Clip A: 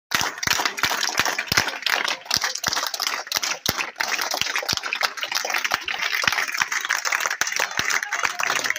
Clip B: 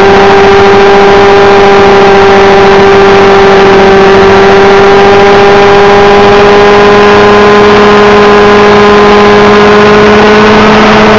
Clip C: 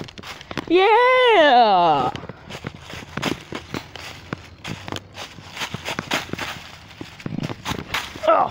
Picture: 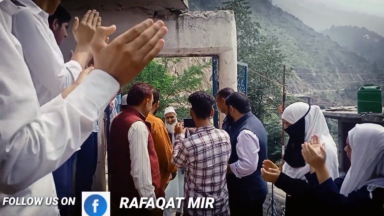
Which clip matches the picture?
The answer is A